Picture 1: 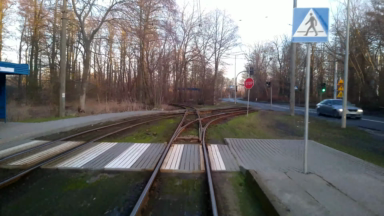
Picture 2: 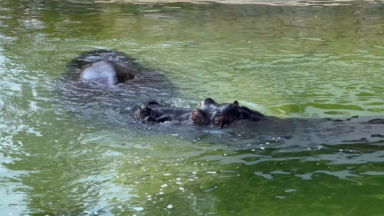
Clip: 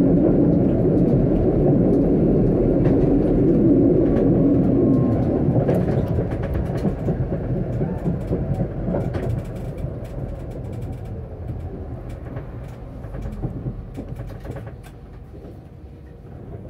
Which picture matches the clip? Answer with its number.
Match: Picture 1